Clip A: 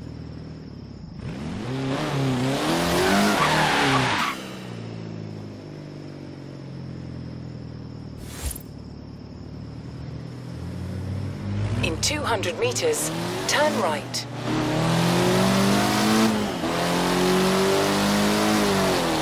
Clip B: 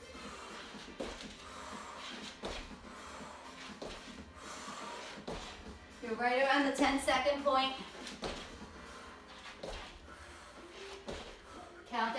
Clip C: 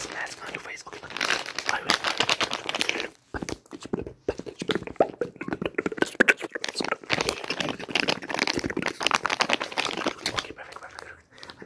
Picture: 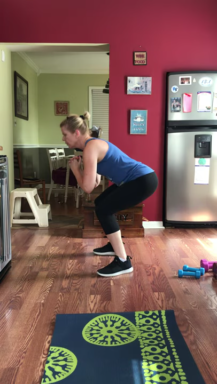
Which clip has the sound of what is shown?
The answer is B